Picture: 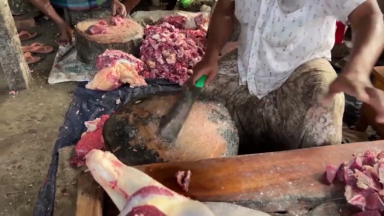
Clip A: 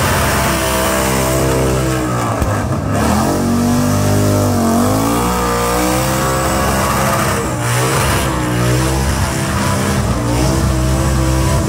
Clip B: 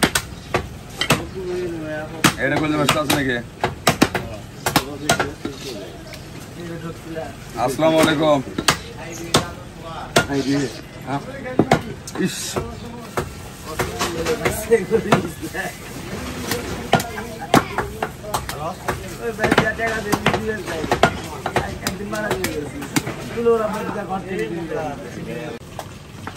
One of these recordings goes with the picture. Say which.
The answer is B